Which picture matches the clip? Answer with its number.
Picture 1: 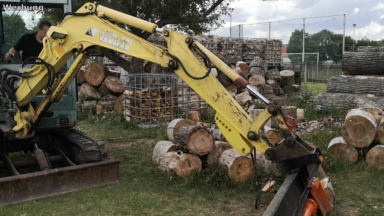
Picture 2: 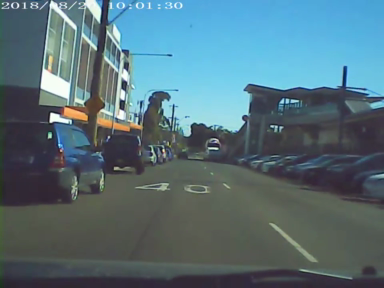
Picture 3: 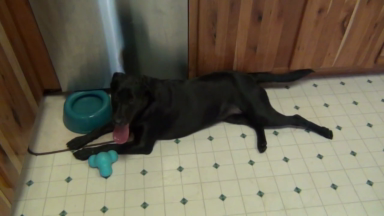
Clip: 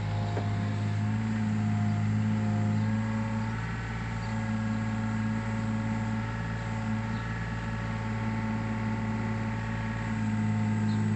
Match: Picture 1